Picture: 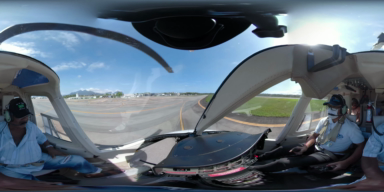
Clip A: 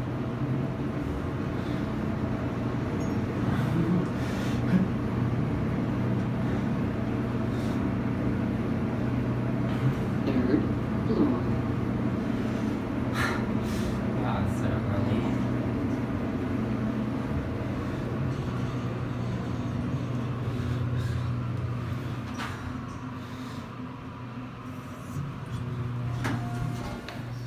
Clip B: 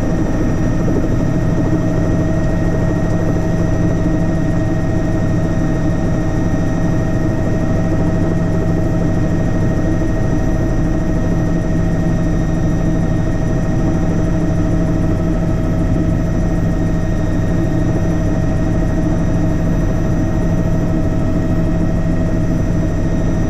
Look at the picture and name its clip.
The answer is B